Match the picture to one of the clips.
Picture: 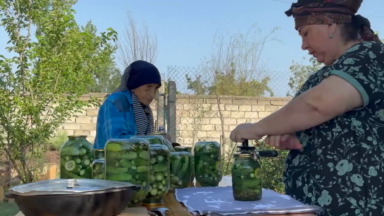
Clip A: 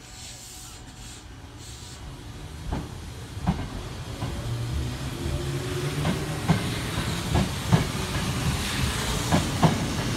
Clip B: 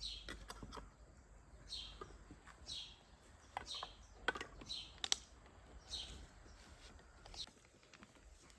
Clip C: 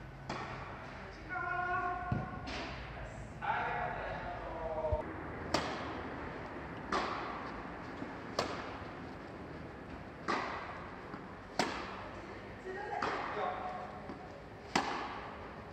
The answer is B